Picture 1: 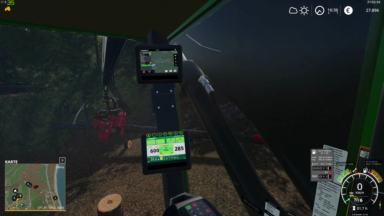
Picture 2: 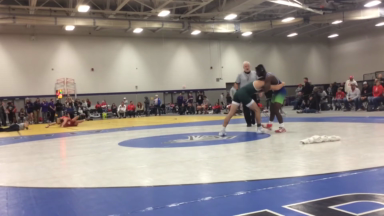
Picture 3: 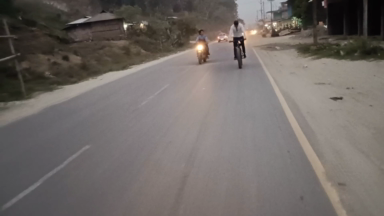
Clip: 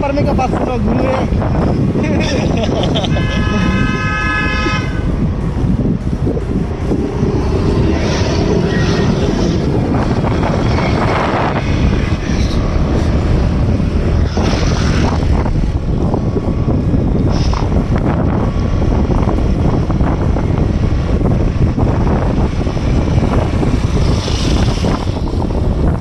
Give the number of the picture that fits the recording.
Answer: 3